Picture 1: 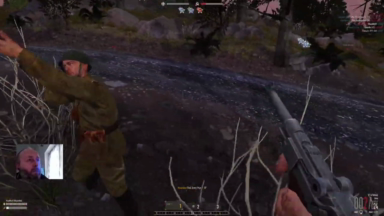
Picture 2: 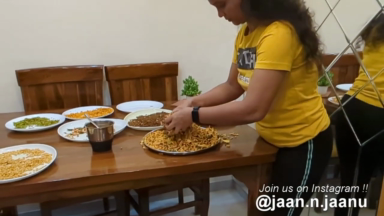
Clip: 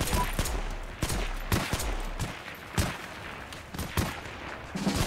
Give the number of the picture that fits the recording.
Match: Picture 1